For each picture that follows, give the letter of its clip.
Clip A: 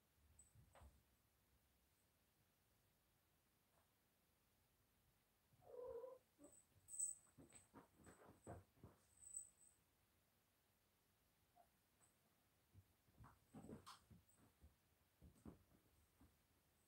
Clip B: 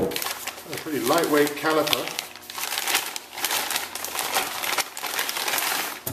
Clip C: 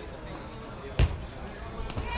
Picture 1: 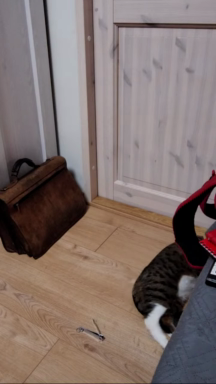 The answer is A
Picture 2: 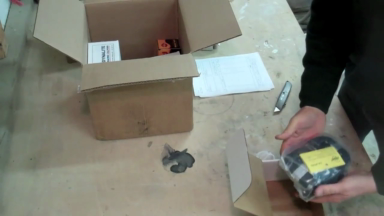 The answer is B